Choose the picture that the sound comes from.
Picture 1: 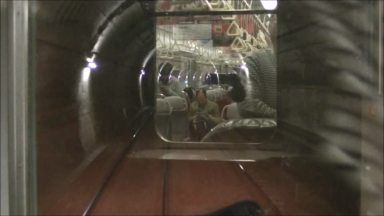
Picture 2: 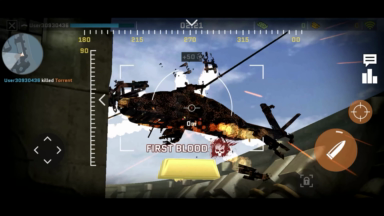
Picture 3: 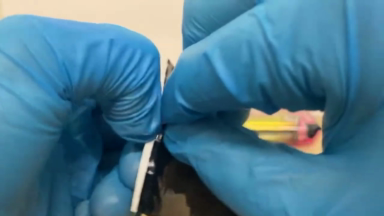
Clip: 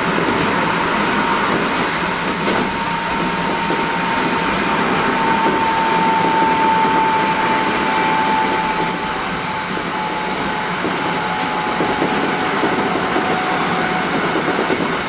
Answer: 1